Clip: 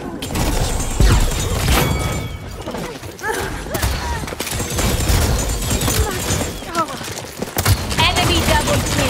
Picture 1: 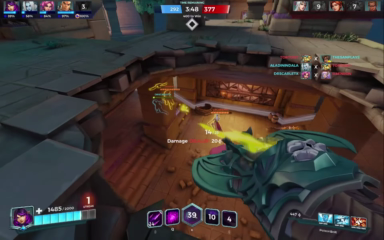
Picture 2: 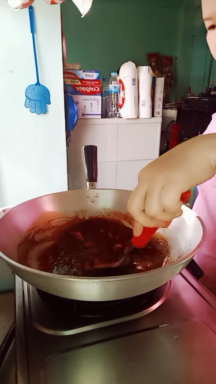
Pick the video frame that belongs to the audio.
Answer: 1